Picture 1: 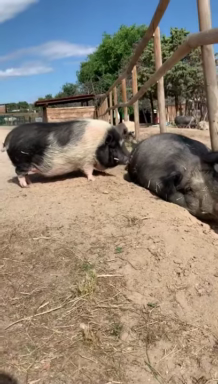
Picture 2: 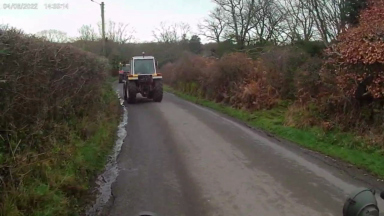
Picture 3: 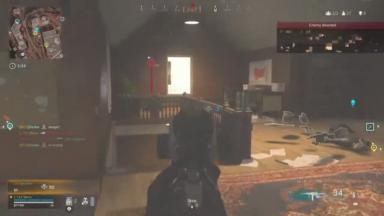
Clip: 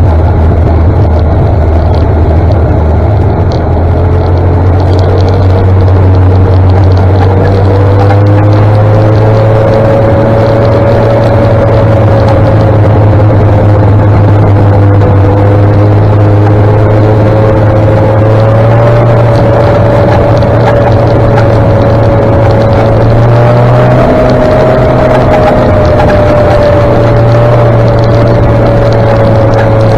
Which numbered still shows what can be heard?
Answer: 2